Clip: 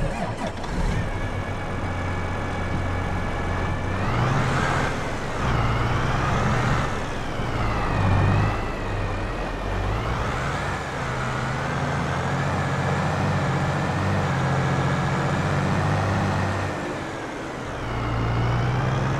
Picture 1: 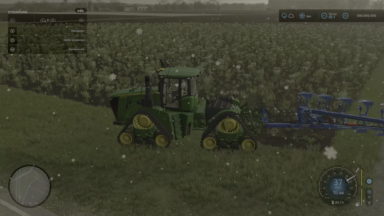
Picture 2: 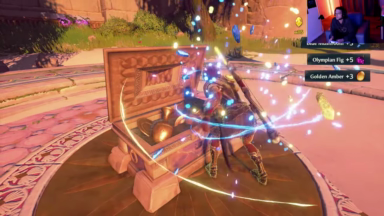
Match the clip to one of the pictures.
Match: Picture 1